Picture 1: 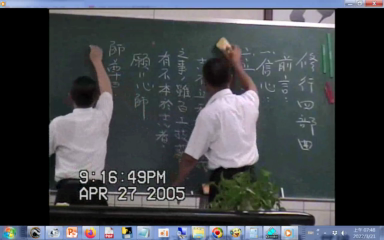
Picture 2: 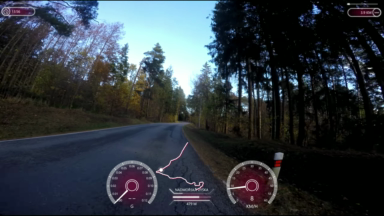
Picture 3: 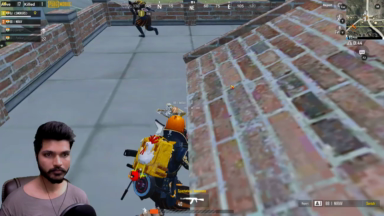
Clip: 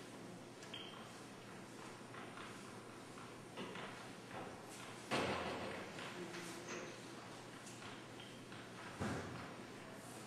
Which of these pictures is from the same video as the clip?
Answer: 1